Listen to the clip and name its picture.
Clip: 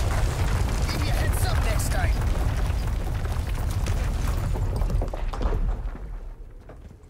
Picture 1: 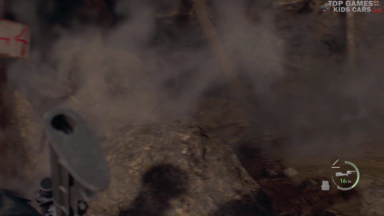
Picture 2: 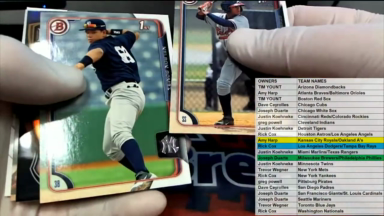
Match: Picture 1